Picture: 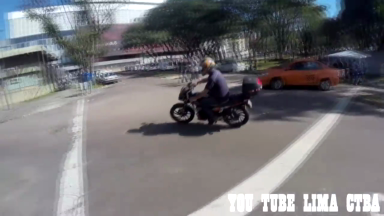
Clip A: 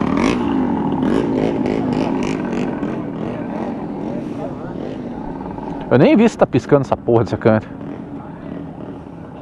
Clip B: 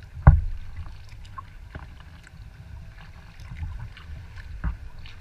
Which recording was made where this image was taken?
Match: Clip A